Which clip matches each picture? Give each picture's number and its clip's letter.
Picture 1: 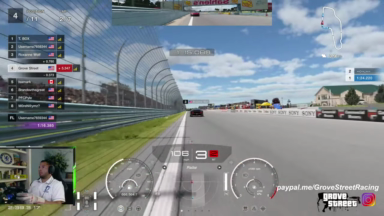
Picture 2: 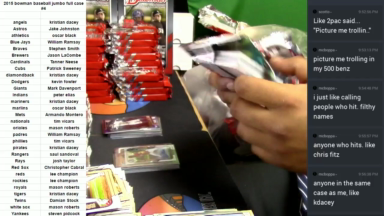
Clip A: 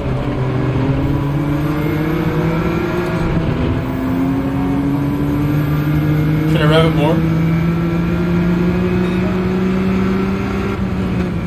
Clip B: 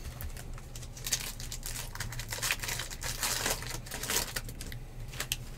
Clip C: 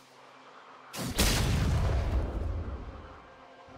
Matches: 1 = A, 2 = B